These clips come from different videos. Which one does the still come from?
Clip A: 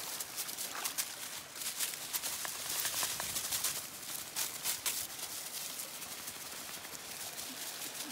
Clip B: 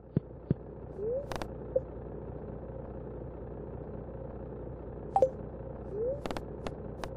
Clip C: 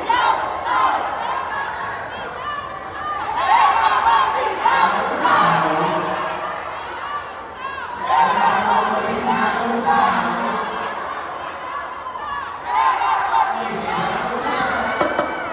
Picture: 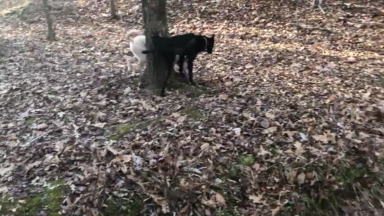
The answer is A